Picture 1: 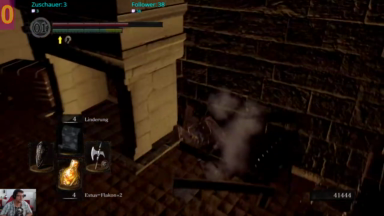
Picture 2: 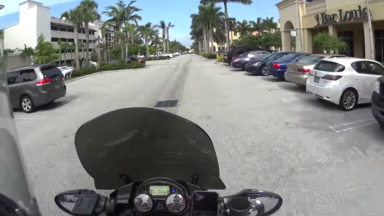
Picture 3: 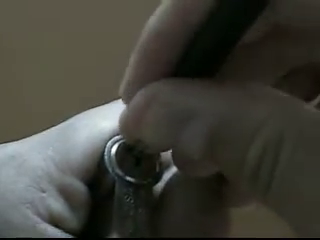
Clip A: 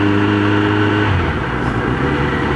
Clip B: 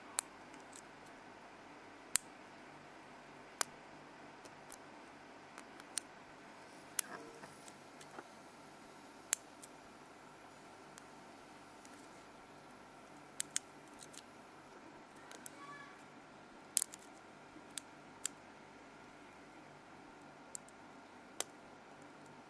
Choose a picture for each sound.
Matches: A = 2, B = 3